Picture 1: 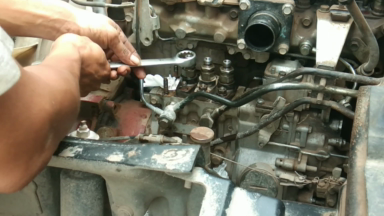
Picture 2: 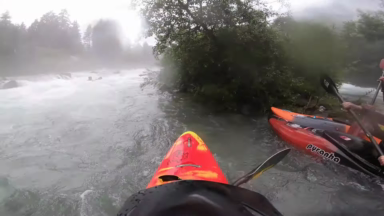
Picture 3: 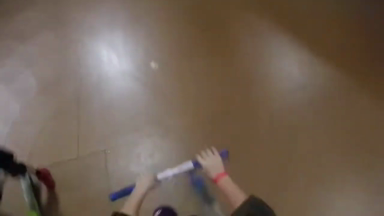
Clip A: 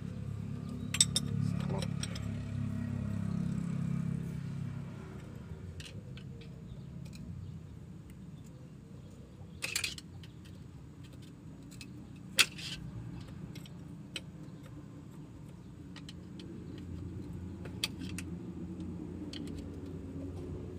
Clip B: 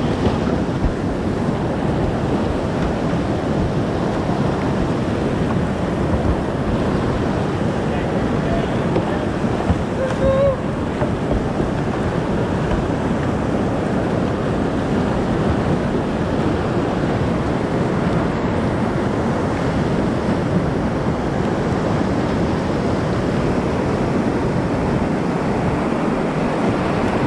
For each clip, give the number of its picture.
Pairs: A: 1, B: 2